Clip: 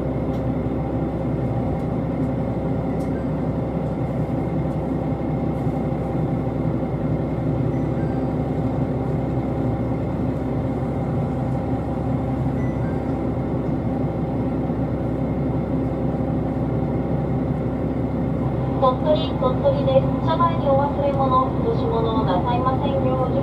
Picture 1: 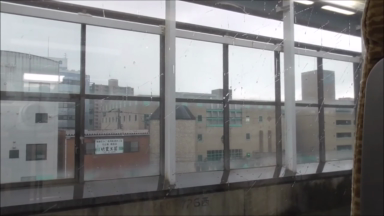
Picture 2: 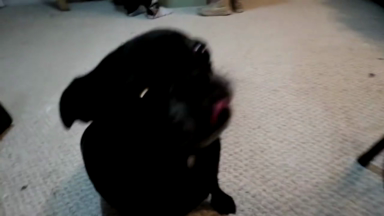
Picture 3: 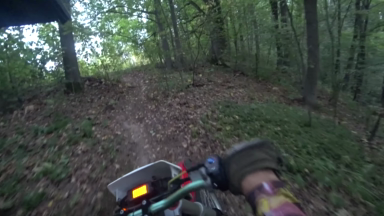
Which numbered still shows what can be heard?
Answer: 1